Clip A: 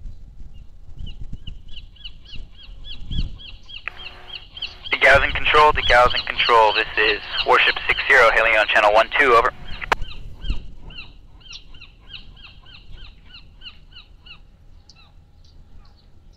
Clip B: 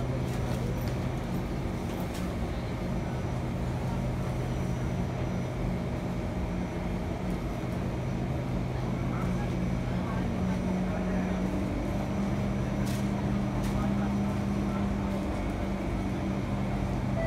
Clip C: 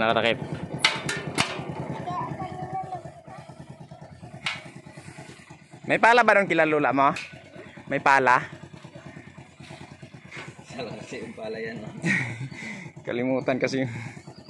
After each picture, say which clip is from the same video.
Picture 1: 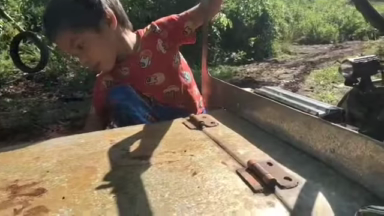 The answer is C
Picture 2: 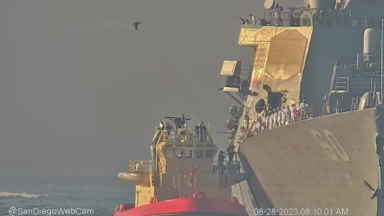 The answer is A